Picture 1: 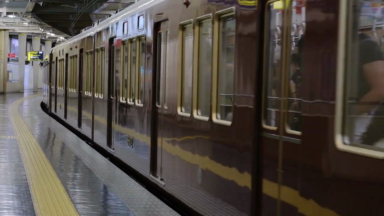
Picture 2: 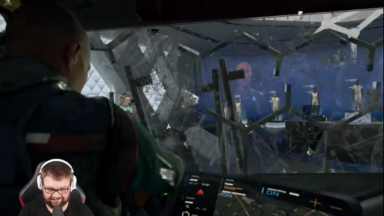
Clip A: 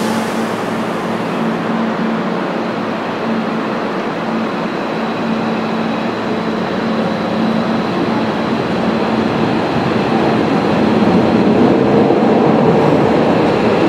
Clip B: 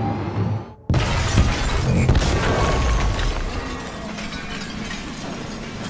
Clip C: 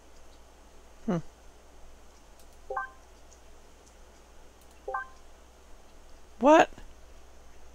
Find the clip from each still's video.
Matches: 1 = A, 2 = B